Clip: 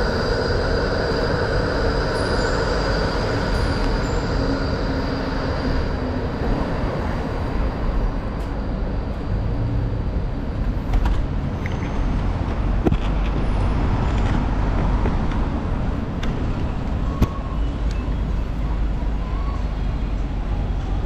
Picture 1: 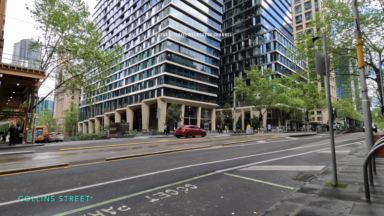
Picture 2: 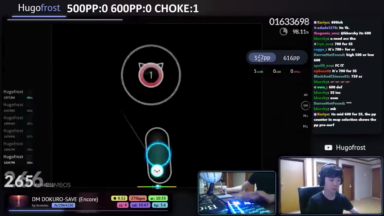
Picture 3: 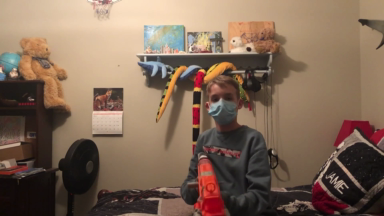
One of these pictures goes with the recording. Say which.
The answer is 1